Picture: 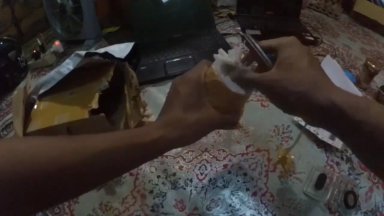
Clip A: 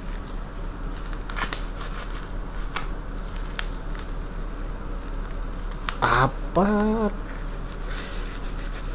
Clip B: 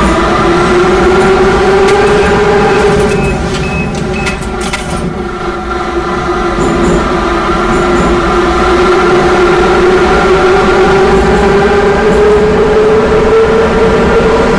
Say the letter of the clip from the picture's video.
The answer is A